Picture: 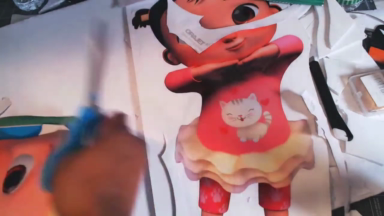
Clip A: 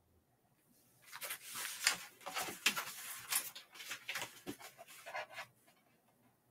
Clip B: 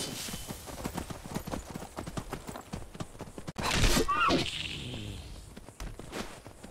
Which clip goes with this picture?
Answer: A